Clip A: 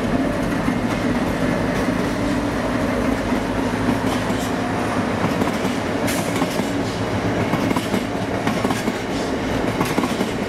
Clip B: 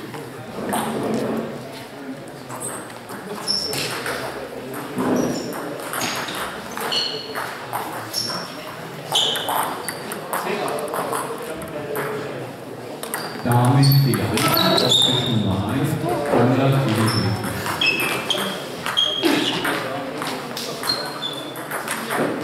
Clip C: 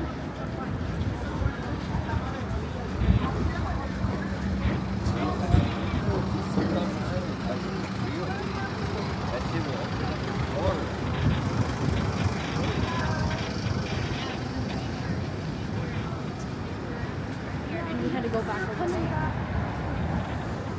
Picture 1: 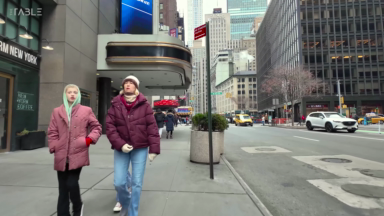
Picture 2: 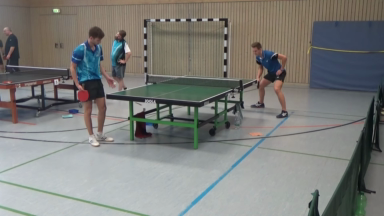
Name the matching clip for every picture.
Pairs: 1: C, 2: B